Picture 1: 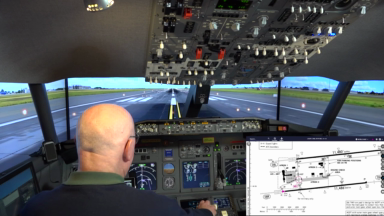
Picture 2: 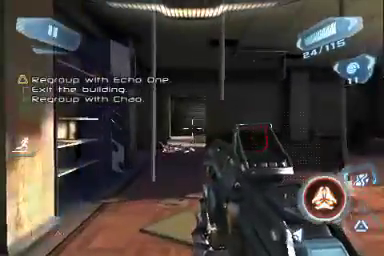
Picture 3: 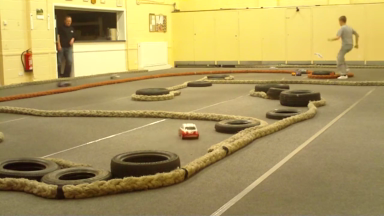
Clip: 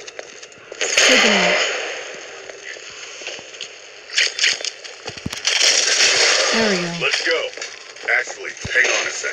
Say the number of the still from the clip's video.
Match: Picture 2